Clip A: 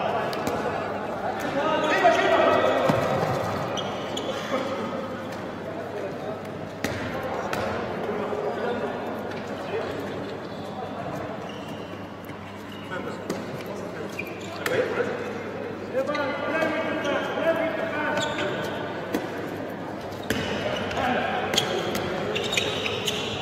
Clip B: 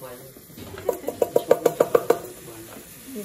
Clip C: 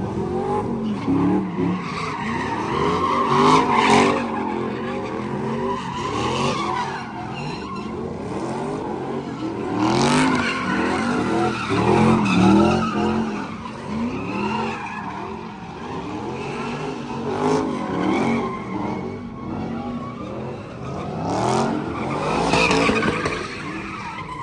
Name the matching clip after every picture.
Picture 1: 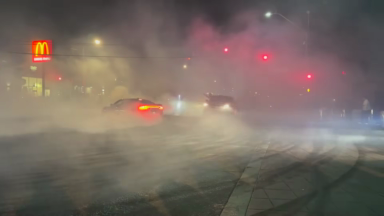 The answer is C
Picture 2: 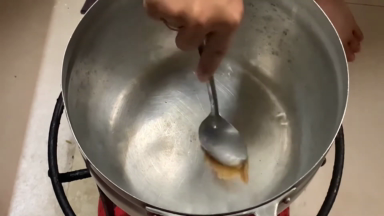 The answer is B